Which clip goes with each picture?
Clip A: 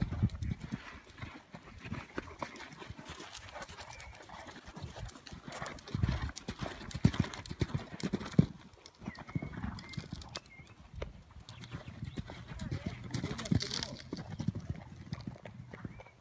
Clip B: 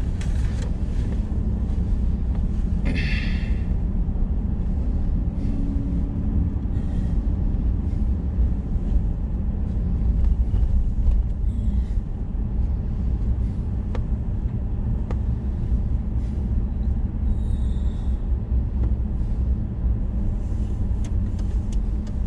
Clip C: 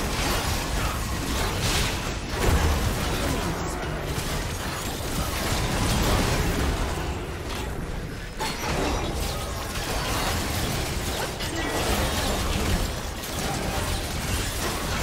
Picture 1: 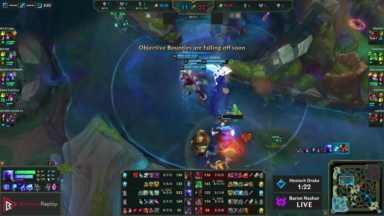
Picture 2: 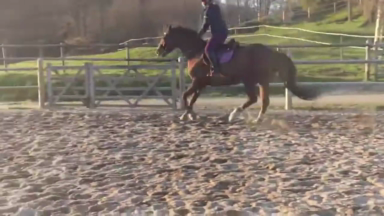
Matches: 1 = C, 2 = A